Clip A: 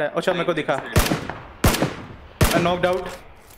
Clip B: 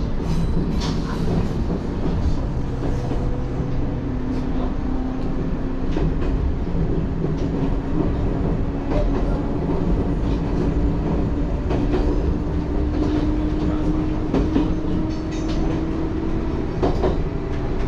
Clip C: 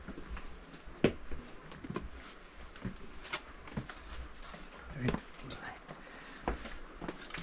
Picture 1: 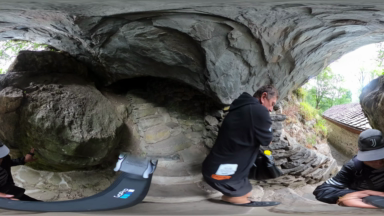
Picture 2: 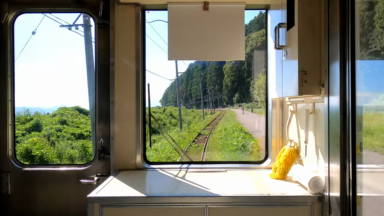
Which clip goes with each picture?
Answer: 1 C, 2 B